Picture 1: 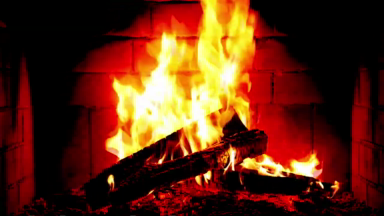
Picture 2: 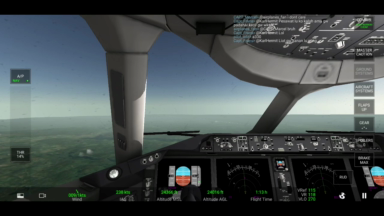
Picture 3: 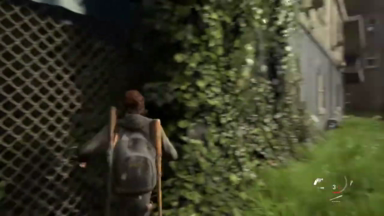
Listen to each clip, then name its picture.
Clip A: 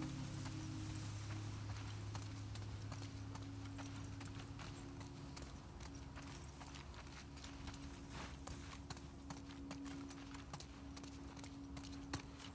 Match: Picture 3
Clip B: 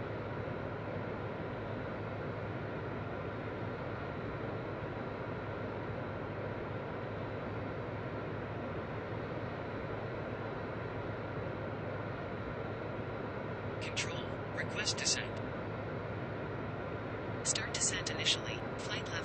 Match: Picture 2